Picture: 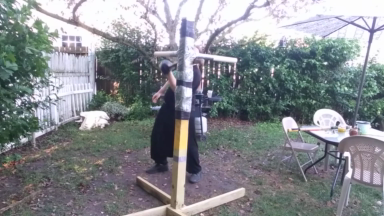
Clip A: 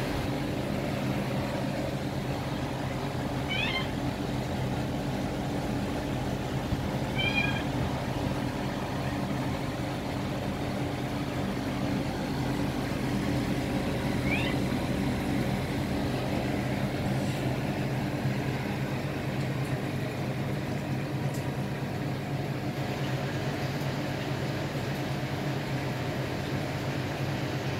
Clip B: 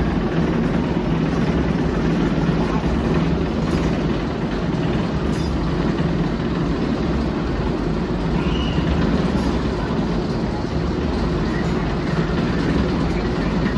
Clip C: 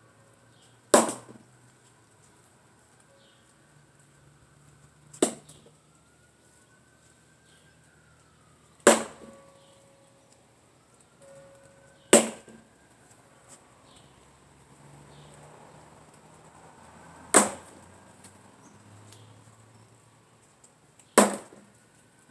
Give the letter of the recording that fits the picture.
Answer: C